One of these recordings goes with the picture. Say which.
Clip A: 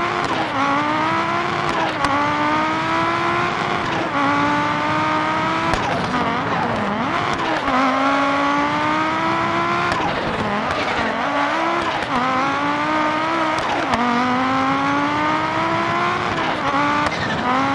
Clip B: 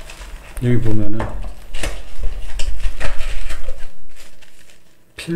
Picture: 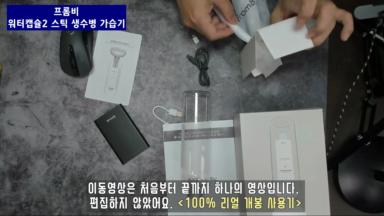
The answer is B